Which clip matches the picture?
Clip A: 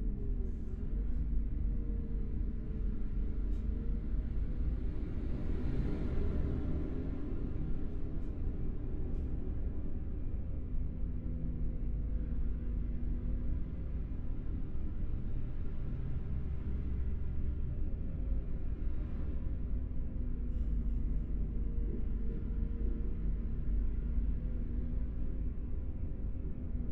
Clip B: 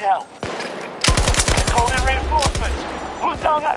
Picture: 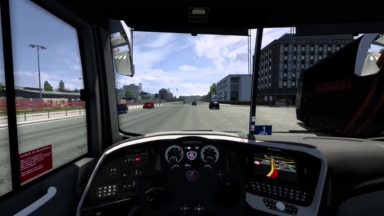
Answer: A